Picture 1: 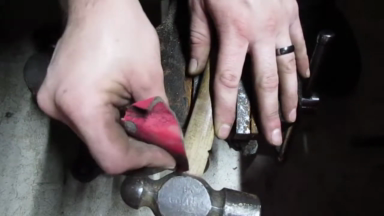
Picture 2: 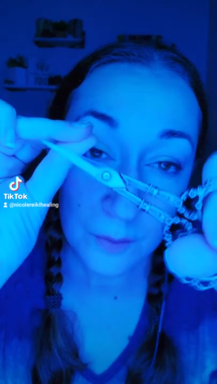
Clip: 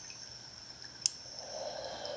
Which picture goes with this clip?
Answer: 2